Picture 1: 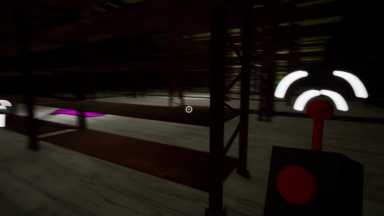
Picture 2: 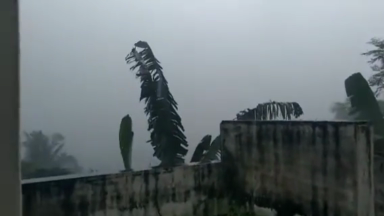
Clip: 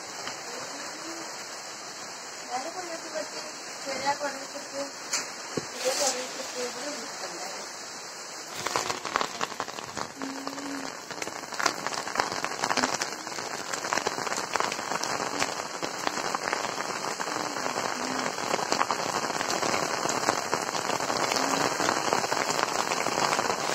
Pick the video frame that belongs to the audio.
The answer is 2